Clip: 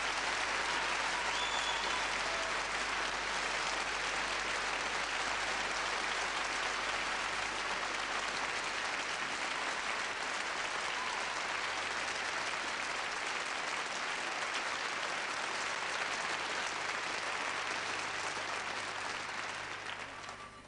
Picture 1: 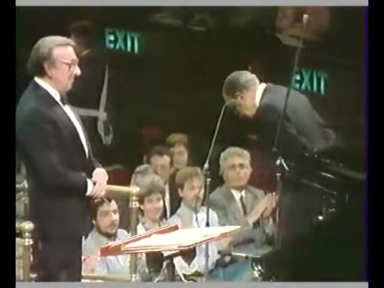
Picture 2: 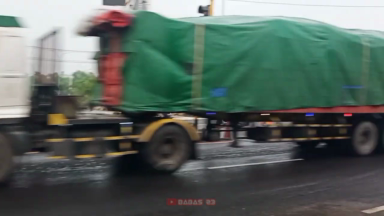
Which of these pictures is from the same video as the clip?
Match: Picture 1